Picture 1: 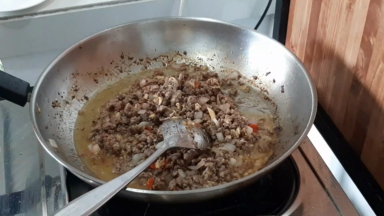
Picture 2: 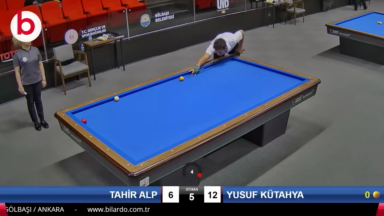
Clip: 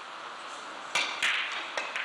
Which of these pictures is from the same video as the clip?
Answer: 2